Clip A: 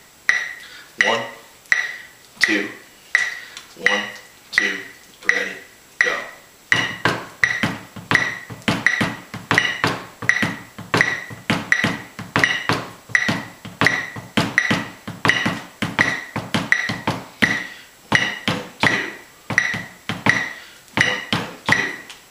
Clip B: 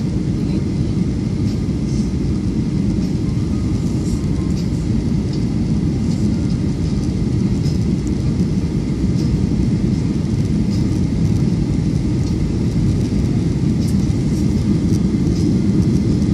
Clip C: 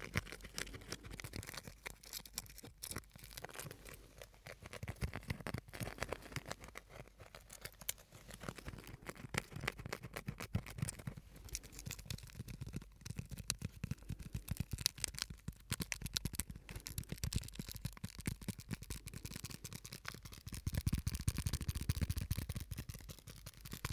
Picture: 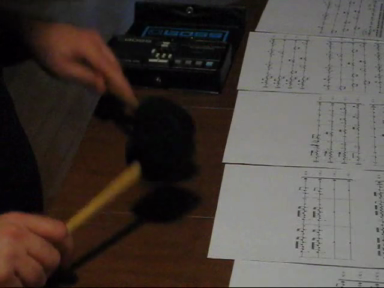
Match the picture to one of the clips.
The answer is A